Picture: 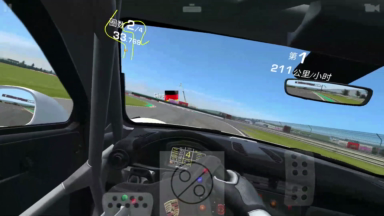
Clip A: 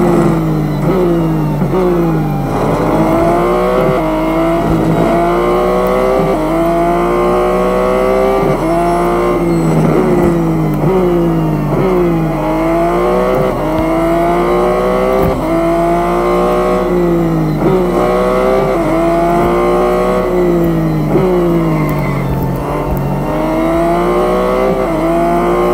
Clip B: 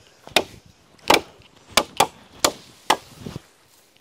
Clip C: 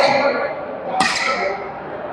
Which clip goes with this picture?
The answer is A